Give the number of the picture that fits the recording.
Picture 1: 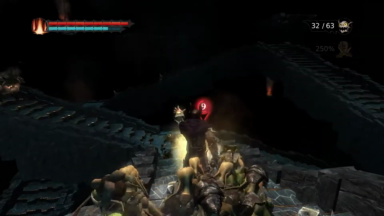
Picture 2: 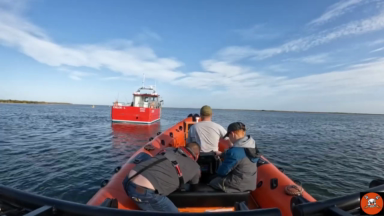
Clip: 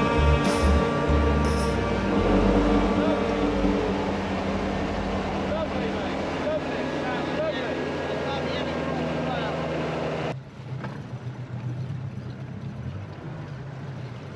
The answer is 2